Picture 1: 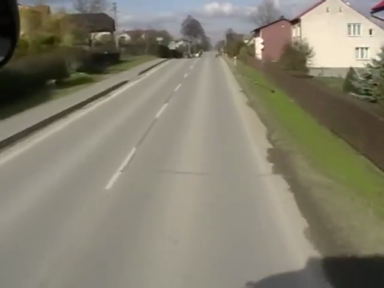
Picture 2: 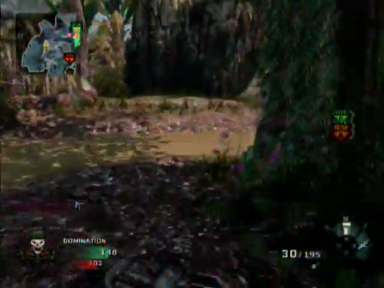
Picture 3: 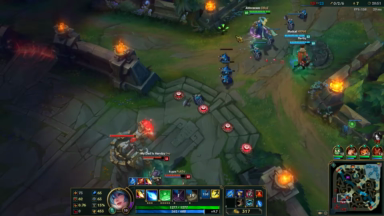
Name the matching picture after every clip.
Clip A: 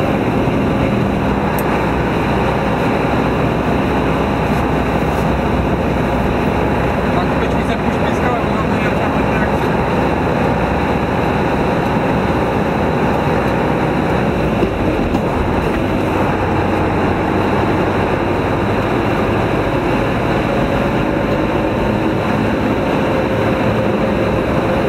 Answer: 1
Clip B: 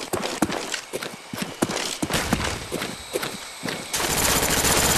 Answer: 2